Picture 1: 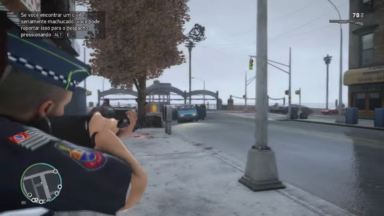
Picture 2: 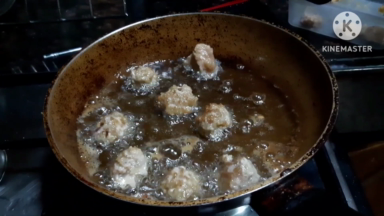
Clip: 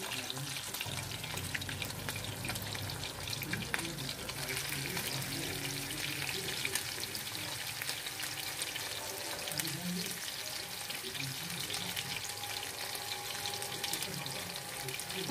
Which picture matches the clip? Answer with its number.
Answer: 2